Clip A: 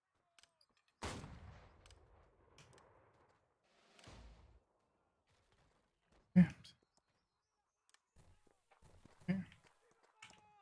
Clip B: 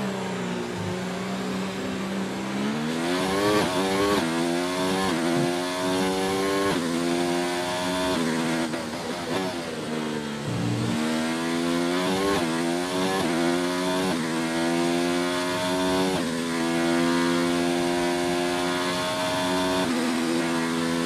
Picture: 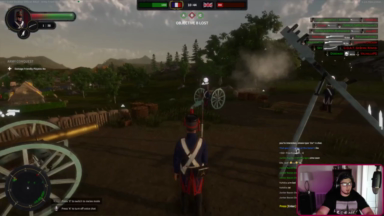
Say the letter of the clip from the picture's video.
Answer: A